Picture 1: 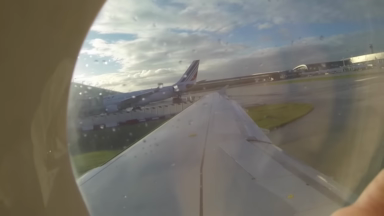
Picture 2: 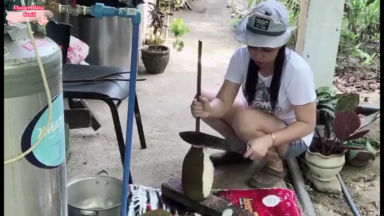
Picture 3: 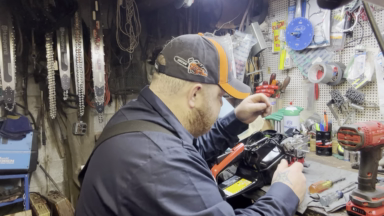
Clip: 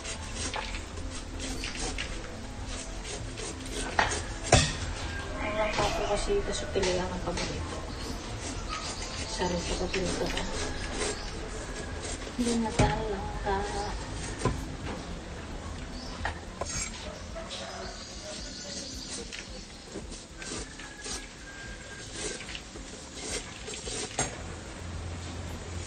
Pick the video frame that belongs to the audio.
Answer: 2